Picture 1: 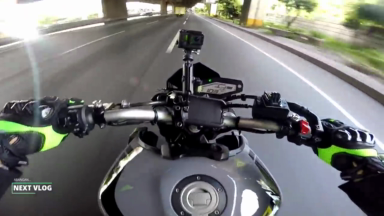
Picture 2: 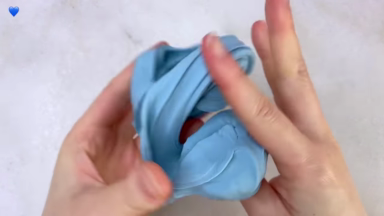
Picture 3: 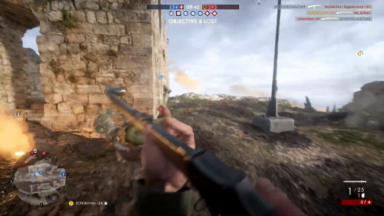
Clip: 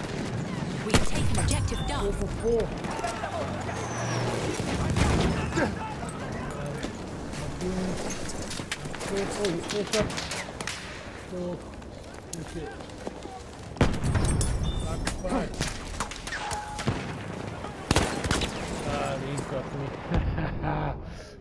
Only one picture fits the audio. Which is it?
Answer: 3